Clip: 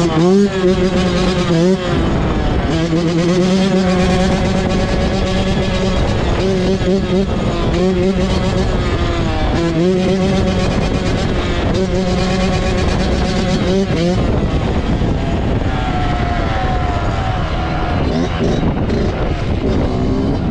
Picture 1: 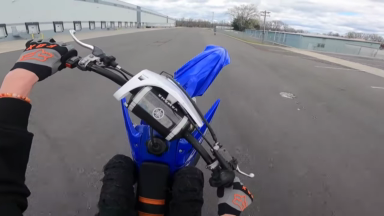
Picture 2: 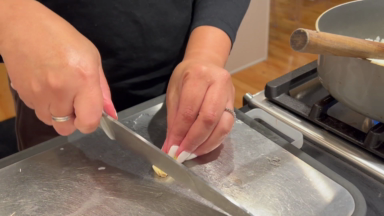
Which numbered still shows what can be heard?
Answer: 1